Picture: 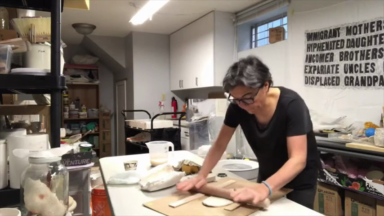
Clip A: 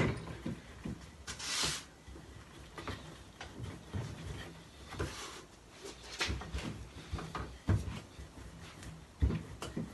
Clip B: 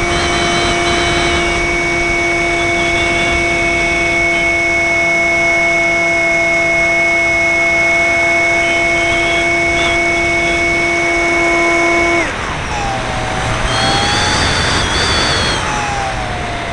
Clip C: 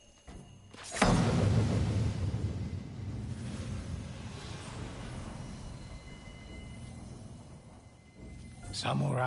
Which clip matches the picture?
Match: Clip A